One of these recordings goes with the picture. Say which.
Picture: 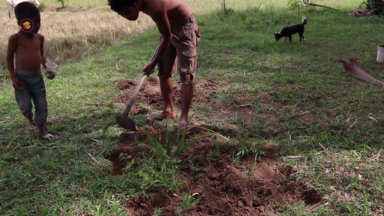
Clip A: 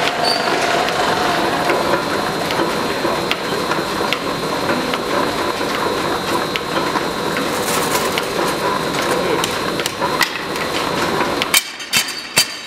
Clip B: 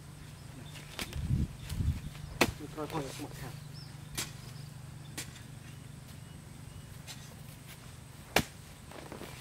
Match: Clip B